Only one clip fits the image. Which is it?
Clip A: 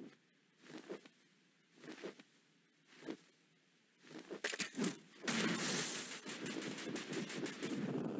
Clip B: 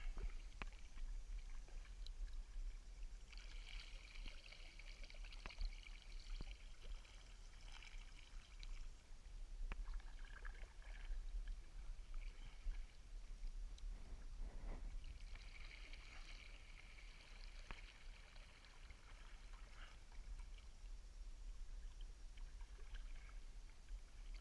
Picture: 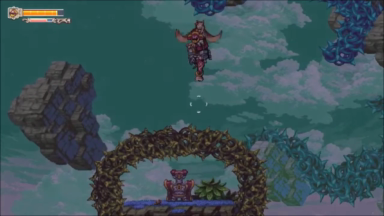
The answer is A